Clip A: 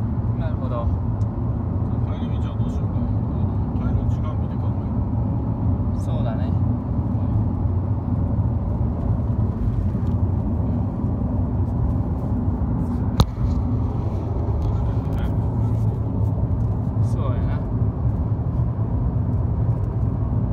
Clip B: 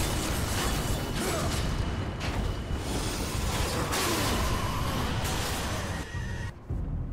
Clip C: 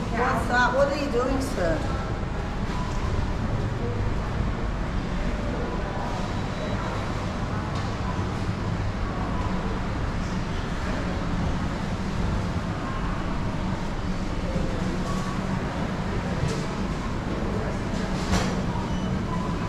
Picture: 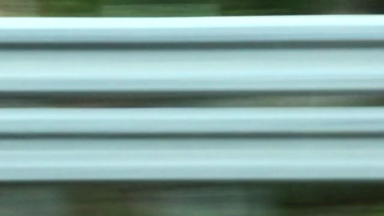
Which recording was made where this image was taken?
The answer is A